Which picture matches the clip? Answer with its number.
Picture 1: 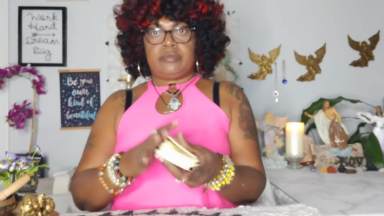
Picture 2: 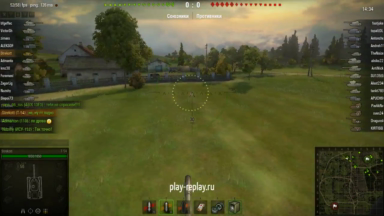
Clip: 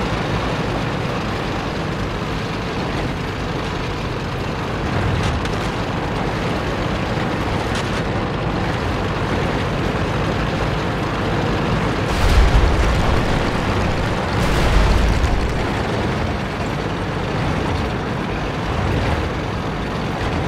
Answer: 2